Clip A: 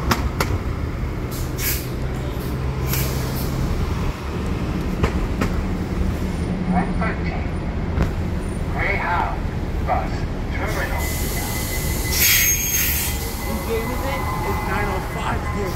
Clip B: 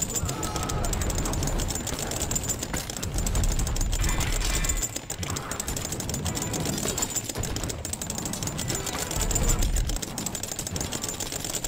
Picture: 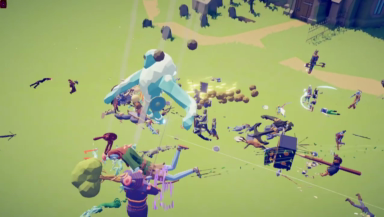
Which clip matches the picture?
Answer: B